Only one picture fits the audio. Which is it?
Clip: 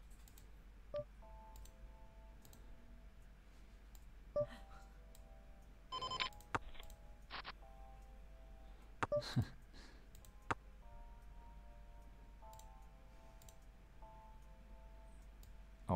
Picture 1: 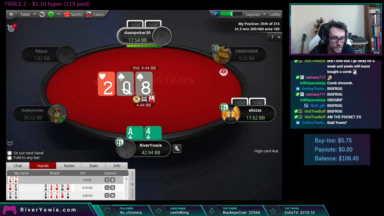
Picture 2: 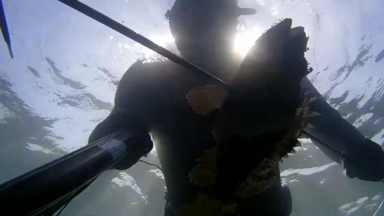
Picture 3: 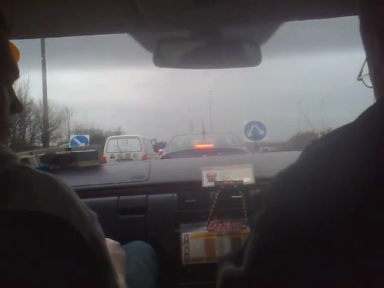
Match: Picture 1